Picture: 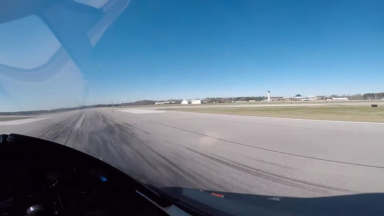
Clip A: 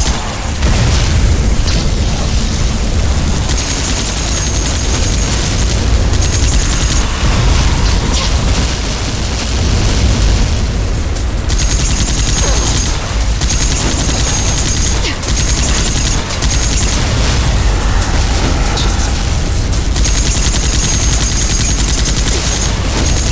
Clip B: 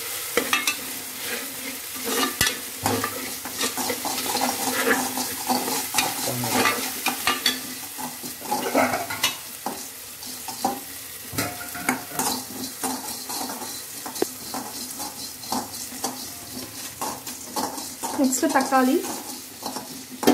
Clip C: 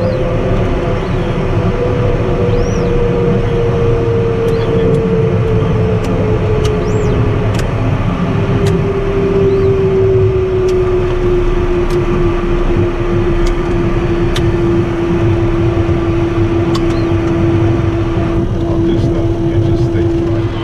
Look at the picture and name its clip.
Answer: C